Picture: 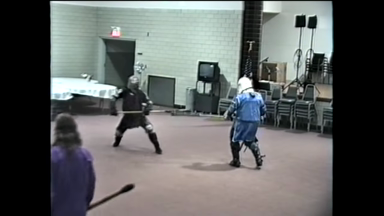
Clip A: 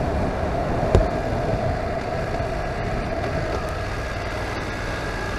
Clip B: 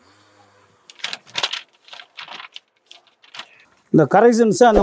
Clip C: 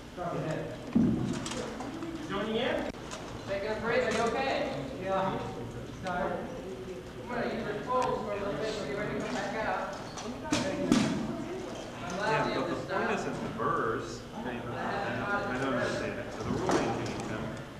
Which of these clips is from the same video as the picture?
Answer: C